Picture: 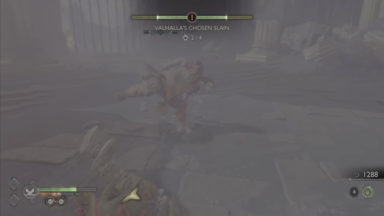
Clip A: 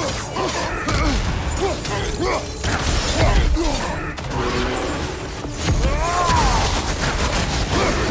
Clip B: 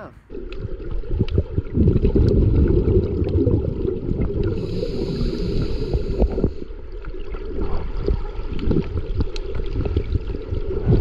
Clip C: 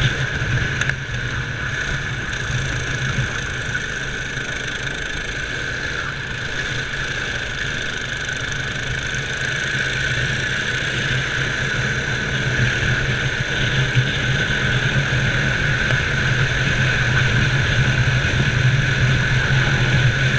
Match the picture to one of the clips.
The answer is A